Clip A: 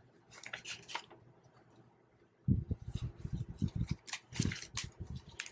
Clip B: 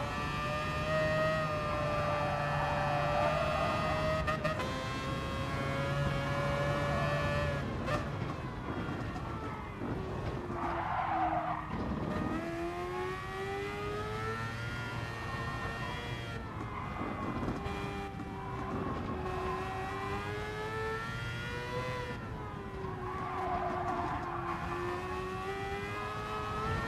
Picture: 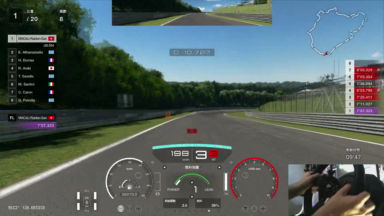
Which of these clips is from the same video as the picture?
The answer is B